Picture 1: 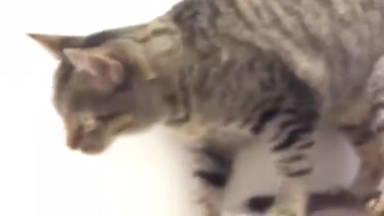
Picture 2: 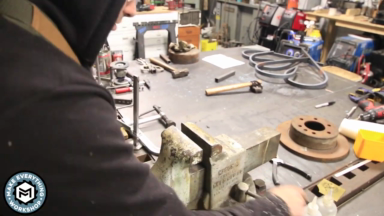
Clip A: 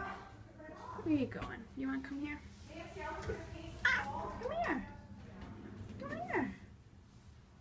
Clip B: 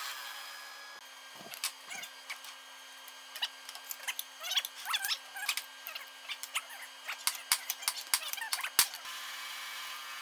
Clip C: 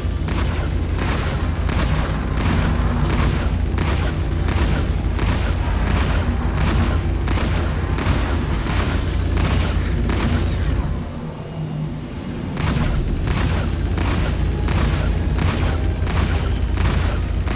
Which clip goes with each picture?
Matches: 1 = A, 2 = B